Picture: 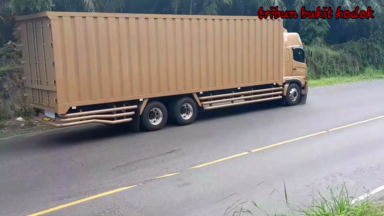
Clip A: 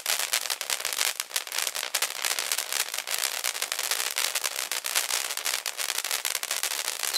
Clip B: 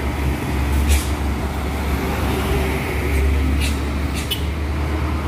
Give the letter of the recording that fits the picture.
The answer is B